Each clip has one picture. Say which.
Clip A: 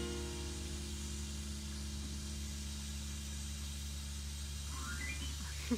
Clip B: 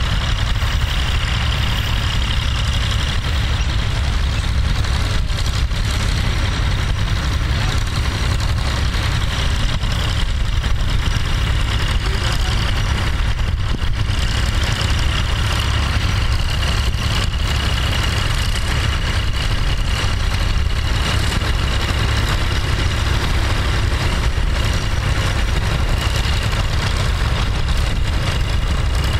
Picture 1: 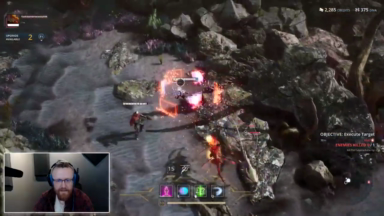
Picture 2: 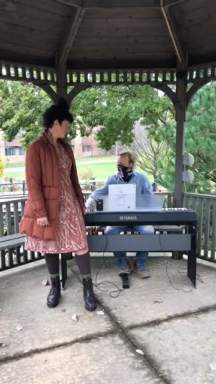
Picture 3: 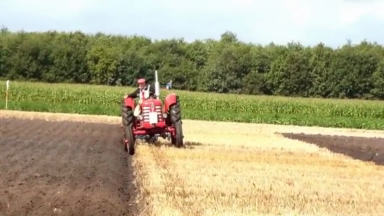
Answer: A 2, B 3